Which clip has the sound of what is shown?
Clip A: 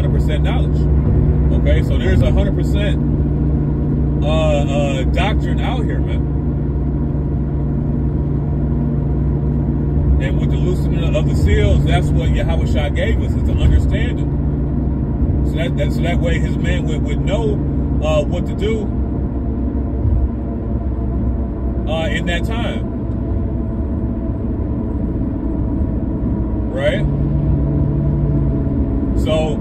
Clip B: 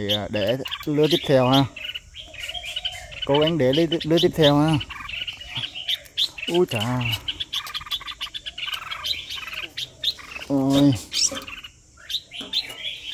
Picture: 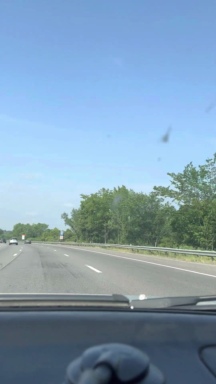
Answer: A